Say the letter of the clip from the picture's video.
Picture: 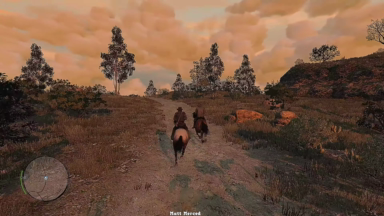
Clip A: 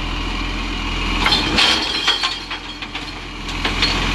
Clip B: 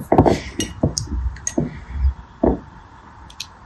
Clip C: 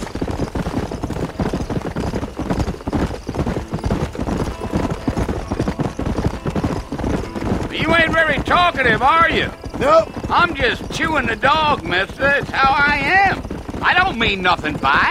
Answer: C